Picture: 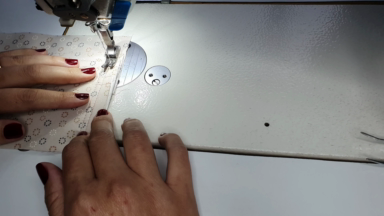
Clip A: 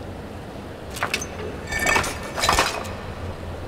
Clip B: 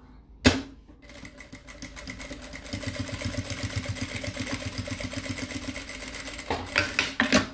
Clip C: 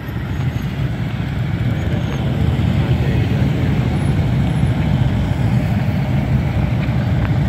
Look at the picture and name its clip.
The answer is B